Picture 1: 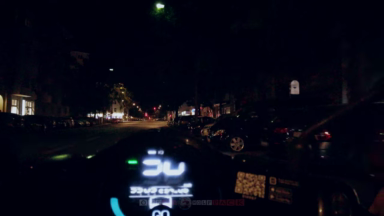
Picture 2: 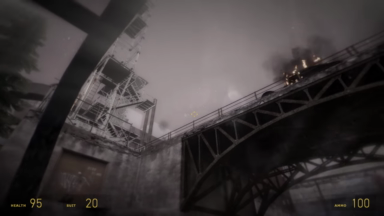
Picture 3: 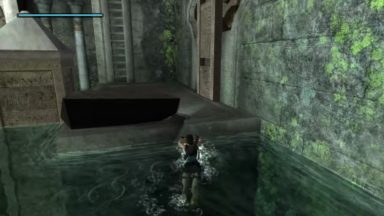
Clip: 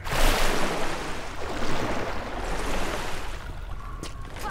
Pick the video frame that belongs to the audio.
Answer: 3